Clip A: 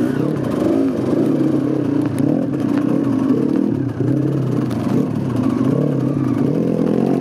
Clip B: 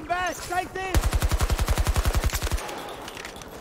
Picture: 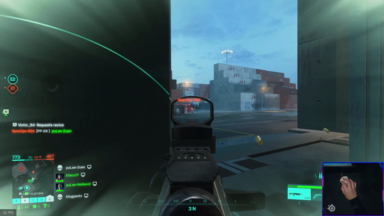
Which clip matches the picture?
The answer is B